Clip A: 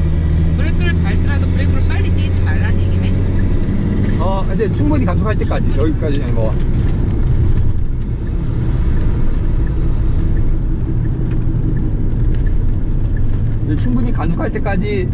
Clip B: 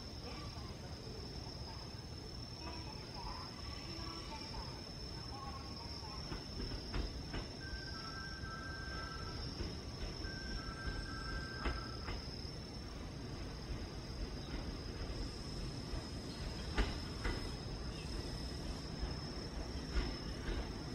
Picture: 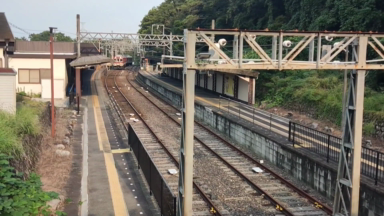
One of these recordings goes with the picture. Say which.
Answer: B